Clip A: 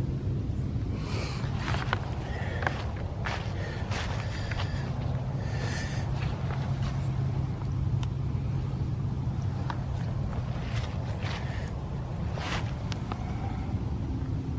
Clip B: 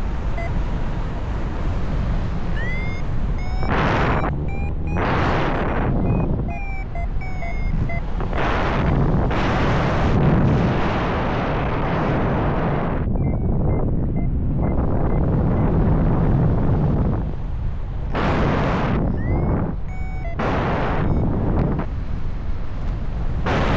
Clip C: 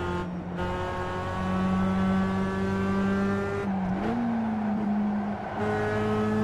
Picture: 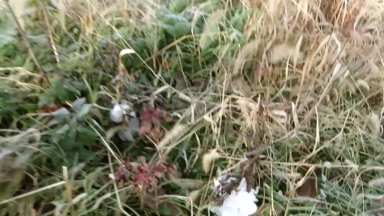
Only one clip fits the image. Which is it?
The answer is A